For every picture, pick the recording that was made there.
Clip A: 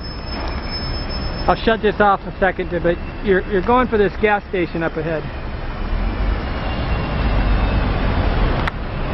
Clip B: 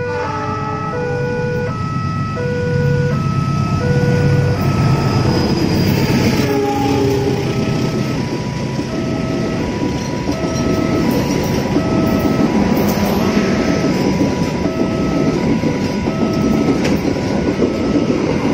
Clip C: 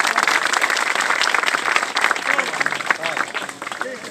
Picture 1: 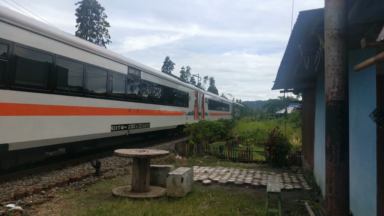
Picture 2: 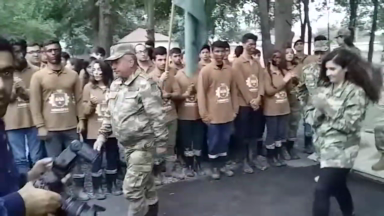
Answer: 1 B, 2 C